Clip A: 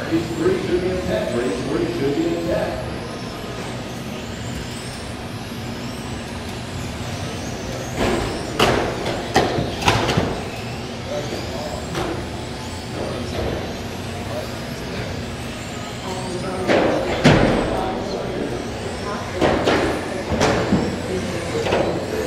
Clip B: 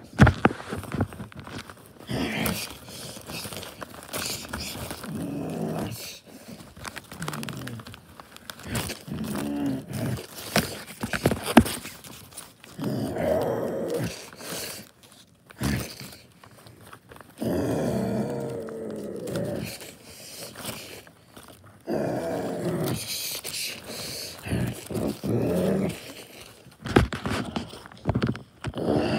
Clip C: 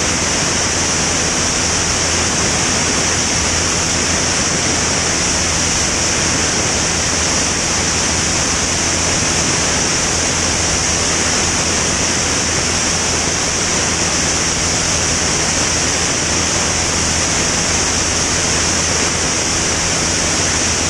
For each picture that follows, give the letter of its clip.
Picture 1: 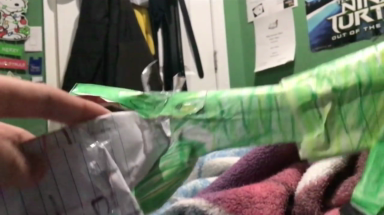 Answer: B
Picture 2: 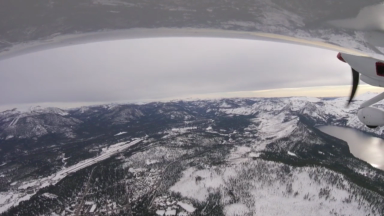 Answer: C